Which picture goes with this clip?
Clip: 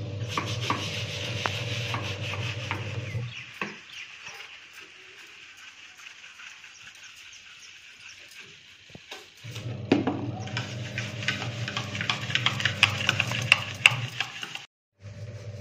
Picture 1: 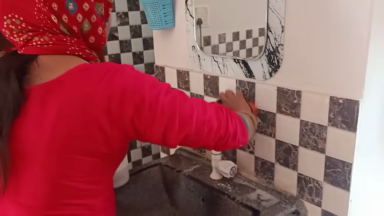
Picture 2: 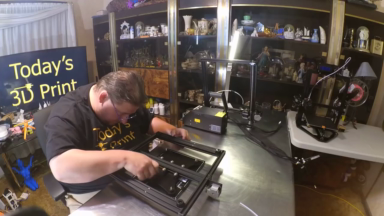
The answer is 1